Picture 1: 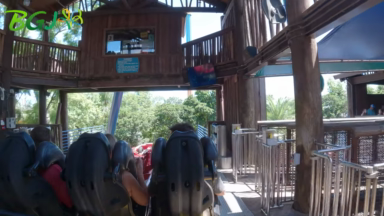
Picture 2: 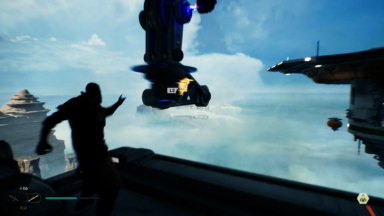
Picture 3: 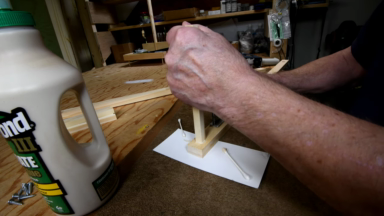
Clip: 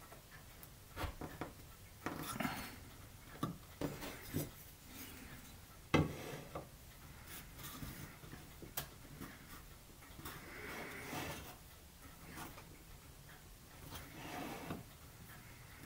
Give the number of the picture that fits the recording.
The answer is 3